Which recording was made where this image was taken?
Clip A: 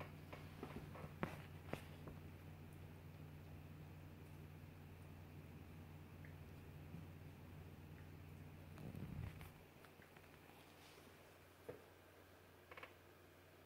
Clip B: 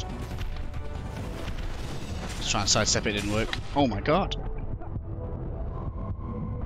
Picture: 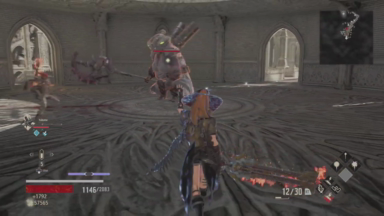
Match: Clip B